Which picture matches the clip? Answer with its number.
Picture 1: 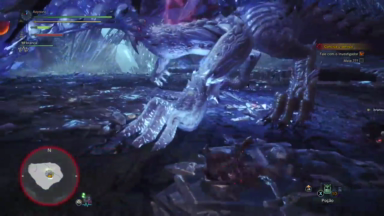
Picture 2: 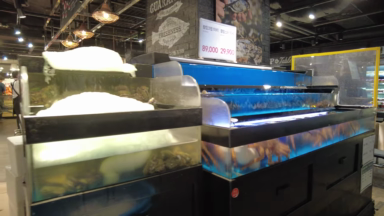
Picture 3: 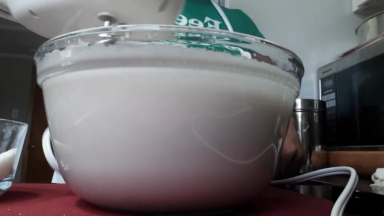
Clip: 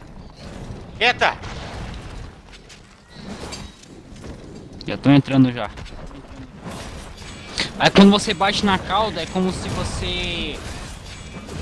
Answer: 1